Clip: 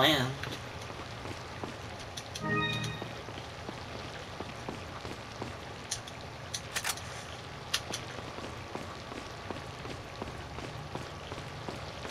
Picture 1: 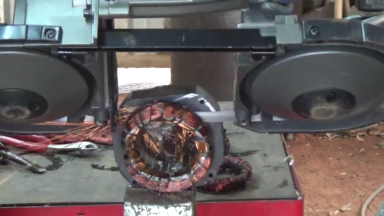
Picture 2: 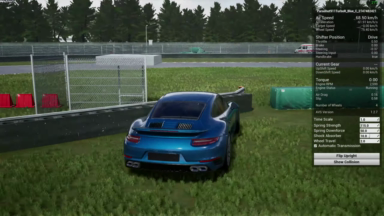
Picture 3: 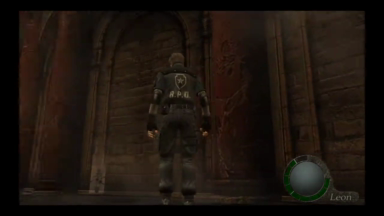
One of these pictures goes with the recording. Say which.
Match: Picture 3